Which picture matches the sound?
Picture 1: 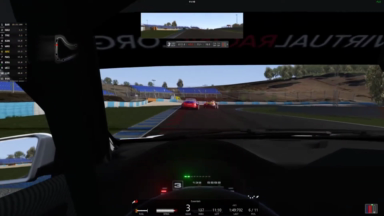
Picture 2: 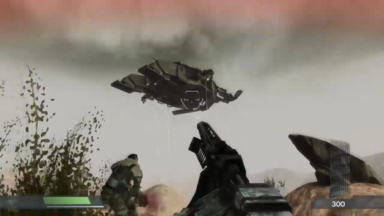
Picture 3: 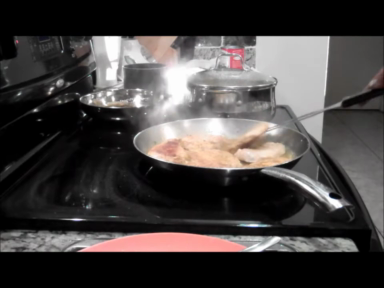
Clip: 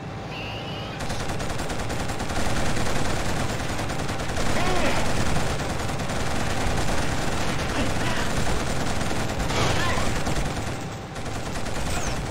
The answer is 2